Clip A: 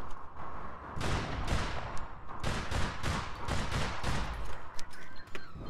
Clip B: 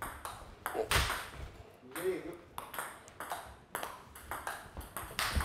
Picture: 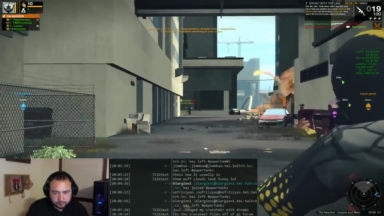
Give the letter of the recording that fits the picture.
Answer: A